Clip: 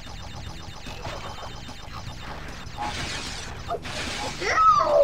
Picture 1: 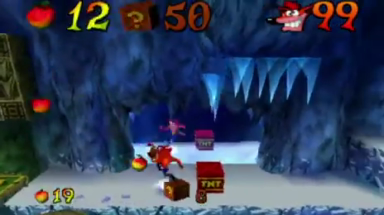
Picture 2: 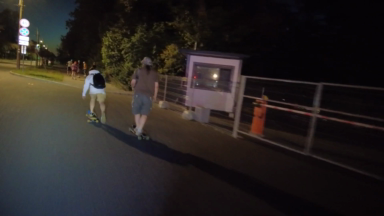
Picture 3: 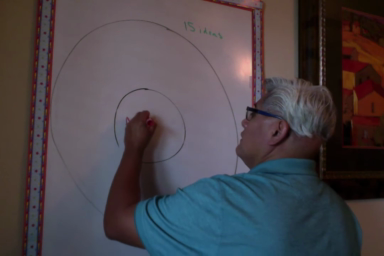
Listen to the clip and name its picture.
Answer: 1